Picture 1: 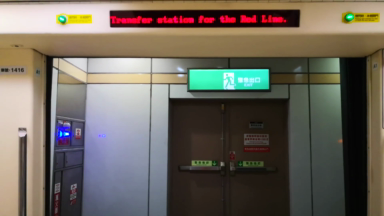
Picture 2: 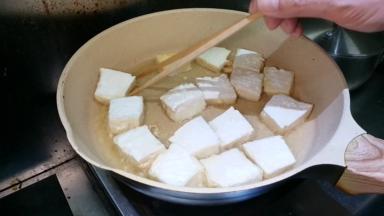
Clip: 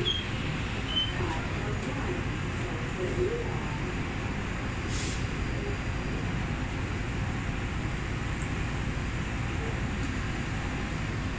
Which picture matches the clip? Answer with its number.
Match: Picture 1